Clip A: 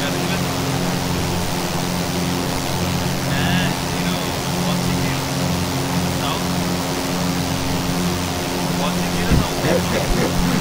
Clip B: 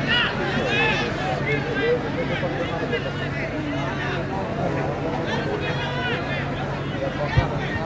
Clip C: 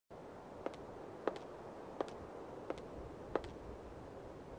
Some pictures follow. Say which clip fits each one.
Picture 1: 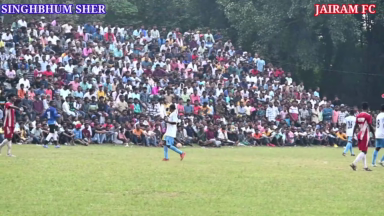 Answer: B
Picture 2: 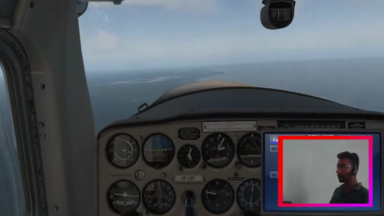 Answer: A